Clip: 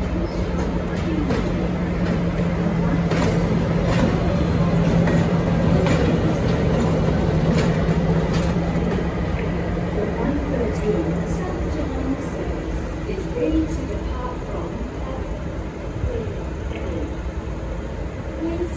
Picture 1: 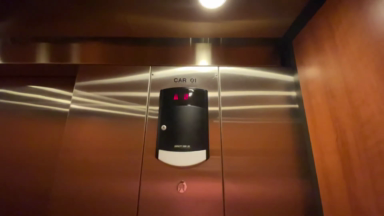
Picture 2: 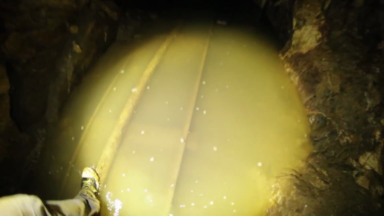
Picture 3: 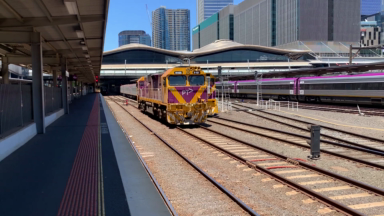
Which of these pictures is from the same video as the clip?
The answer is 3